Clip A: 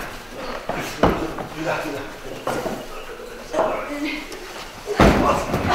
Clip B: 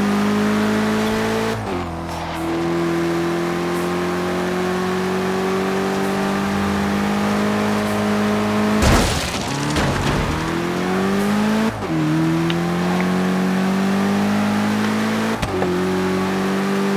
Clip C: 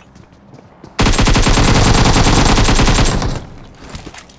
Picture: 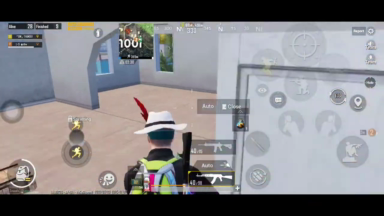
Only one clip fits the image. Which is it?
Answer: C